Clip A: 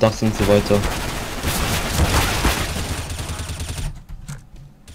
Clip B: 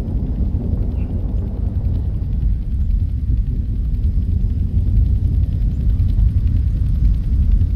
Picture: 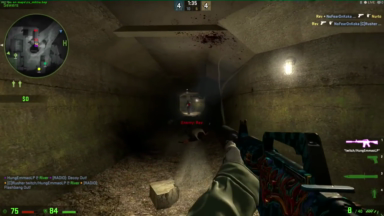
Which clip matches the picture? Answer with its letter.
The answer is A